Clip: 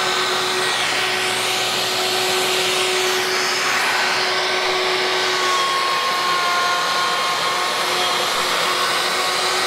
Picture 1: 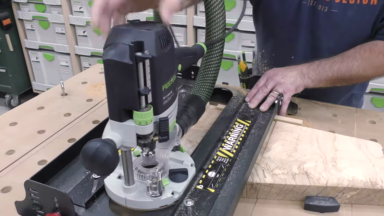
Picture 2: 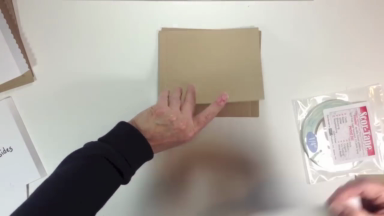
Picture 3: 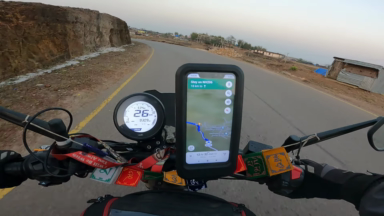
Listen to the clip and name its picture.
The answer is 1